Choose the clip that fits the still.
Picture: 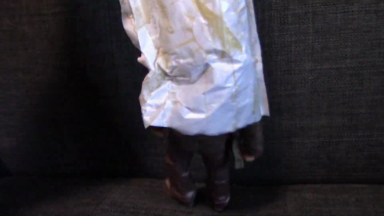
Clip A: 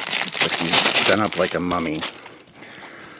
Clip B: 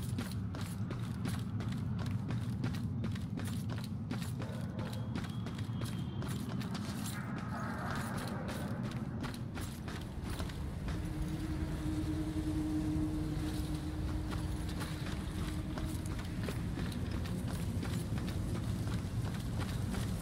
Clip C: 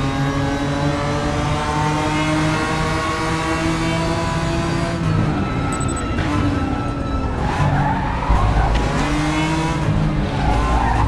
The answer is A